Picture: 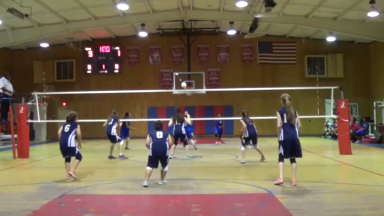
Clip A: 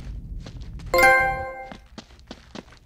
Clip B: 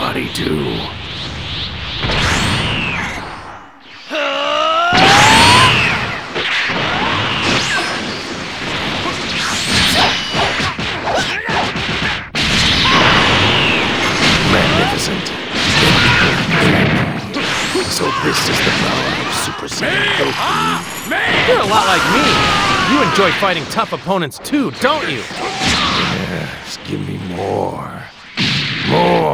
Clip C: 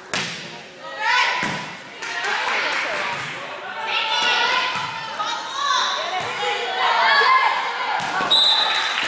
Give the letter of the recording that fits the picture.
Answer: C